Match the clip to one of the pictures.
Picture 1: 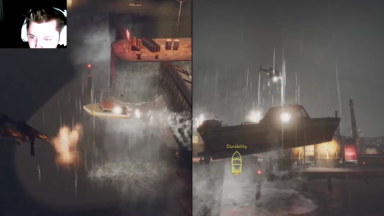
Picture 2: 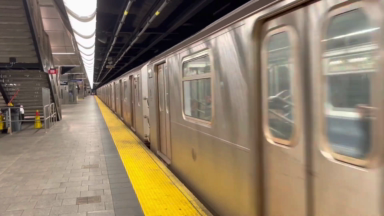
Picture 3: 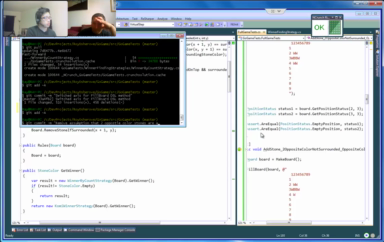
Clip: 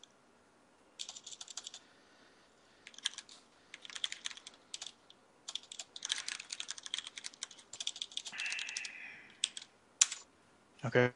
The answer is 3